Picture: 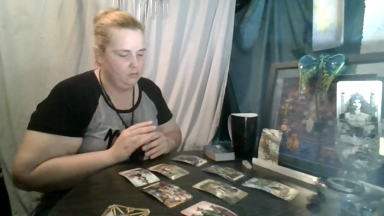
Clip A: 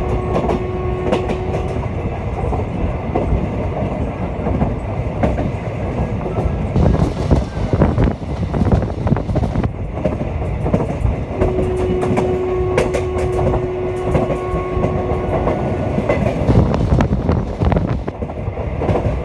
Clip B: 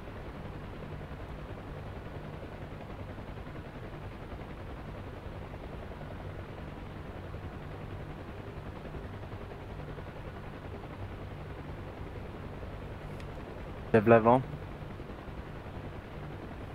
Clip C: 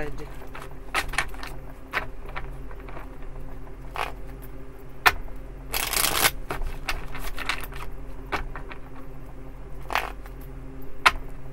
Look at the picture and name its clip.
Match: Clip C